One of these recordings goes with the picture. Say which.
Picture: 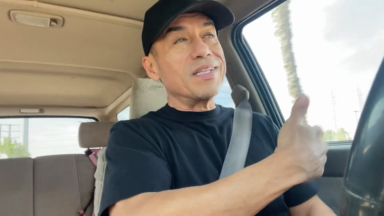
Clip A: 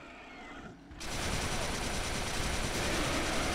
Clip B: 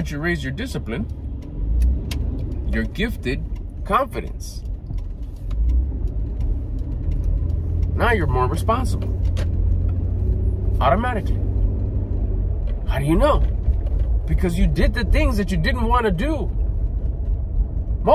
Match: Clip B